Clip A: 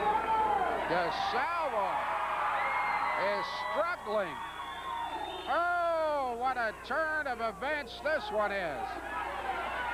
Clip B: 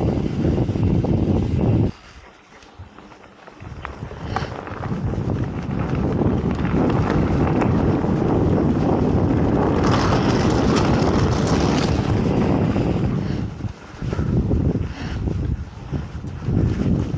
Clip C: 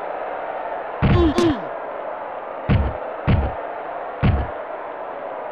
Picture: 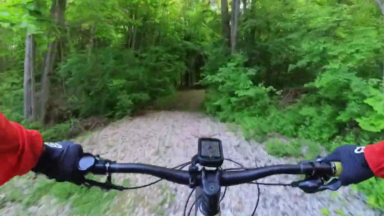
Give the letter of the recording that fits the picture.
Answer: B